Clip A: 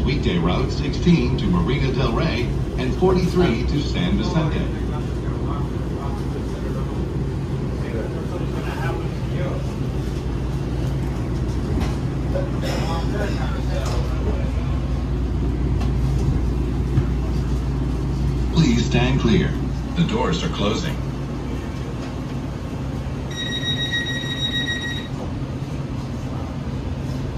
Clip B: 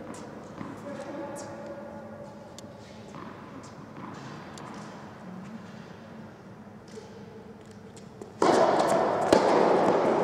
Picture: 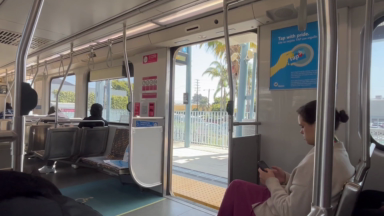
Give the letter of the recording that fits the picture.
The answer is A